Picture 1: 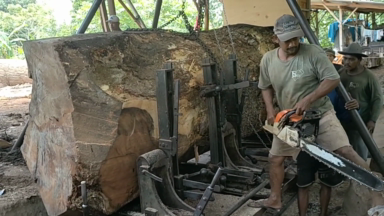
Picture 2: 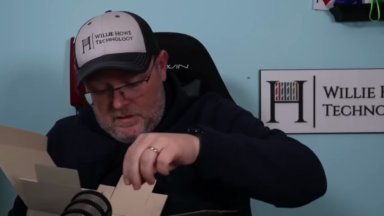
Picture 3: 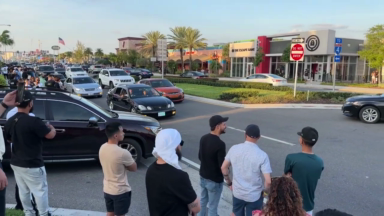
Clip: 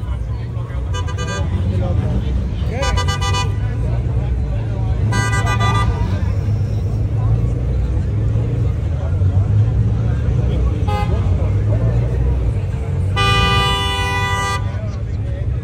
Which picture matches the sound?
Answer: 3